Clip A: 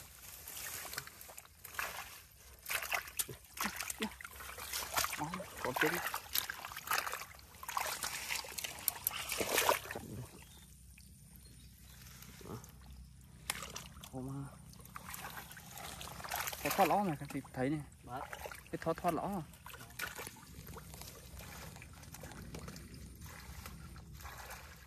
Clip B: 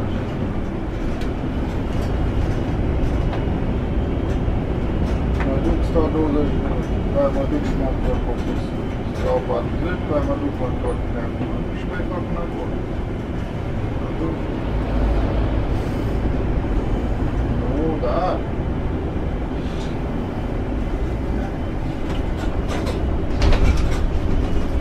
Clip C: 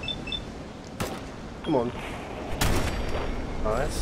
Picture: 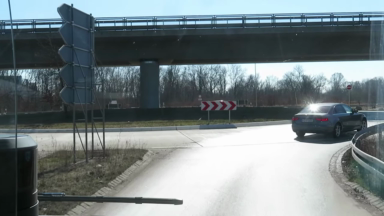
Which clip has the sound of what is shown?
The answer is B